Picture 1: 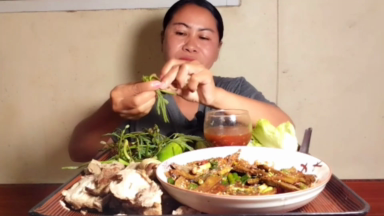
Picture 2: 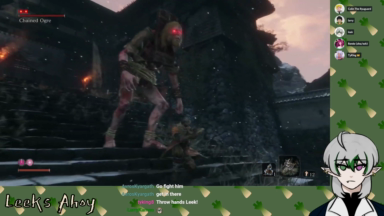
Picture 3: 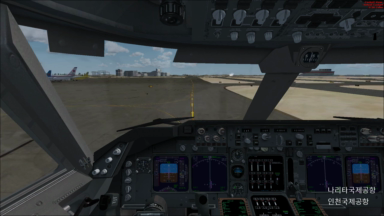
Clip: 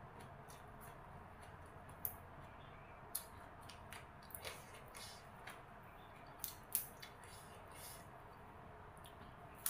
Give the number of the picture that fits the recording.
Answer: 1